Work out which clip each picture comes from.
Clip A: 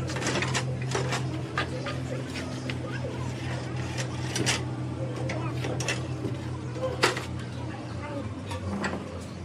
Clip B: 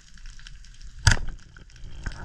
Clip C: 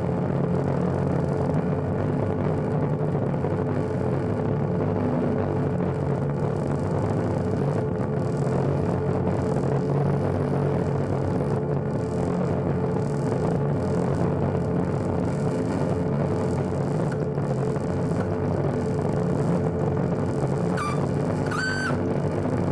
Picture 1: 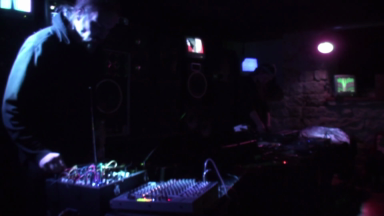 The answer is C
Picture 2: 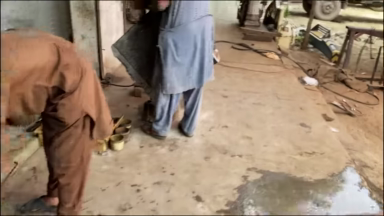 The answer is A